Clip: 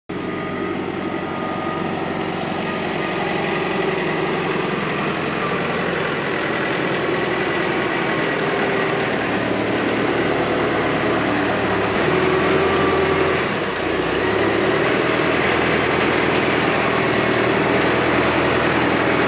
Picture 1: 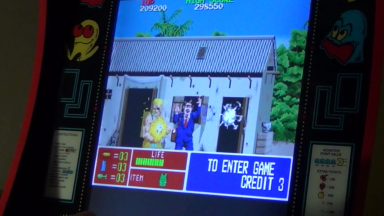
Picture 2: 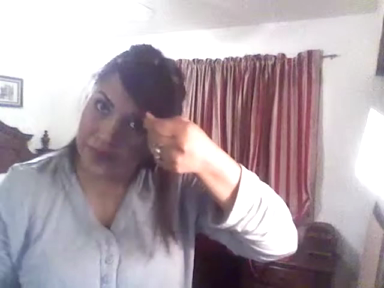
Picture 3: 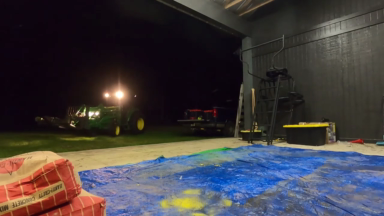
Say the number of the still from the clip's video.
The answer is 3